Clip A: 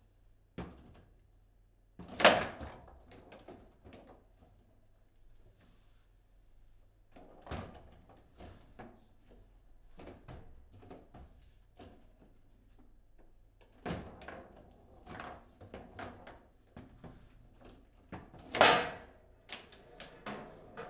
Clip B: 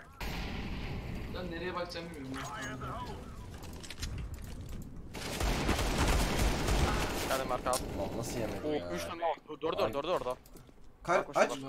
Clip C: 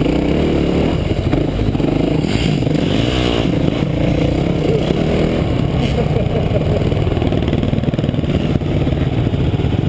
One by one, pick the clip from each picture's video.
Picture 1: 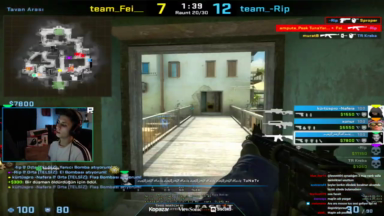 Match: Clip B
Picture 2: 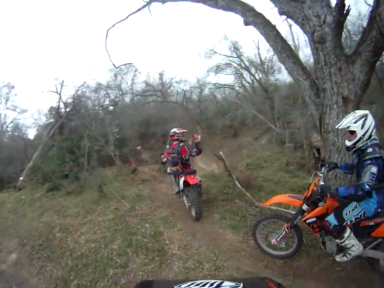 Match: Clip C